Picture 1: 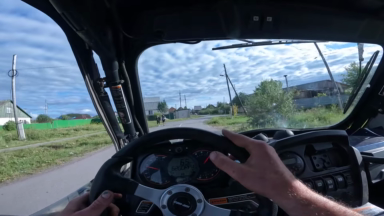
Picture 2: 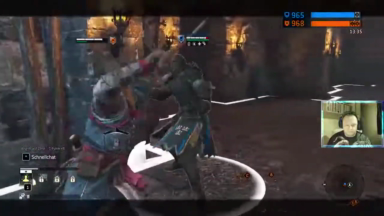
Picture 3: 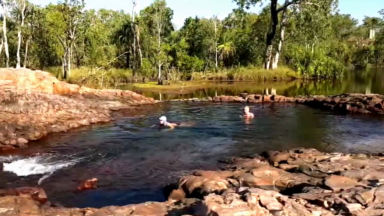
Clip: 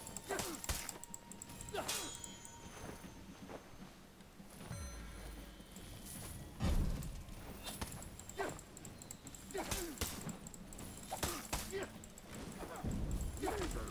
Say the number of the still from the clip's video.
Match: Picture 2